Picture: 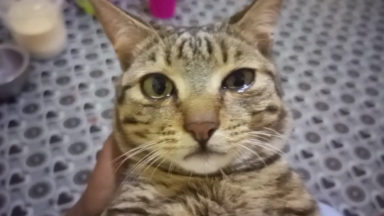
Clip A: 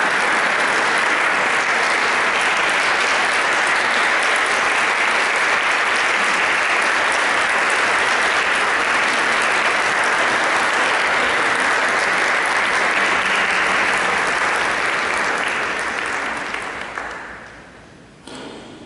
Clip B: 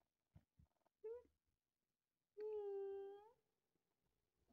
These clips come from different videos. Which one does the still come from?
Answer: B